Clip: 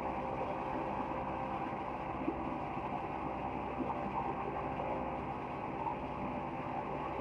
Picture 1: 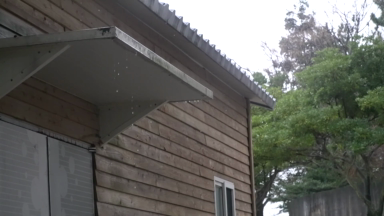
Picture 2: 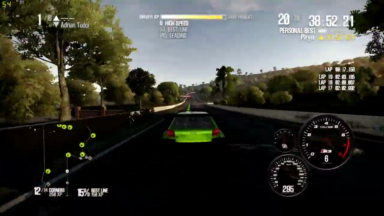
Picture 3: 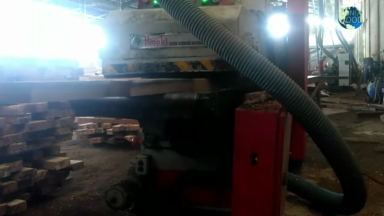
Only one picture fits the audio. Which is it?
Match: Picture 3